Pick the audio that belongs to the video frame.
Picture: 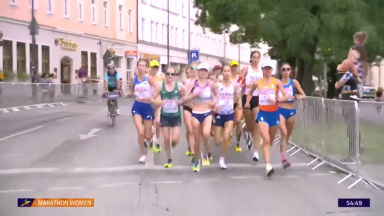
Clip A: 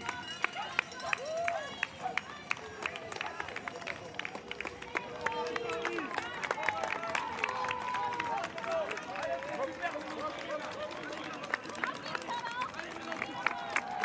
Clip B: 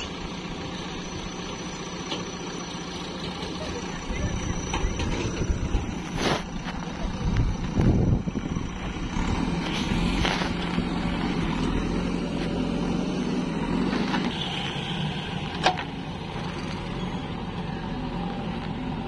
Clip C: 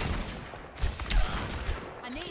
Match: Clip A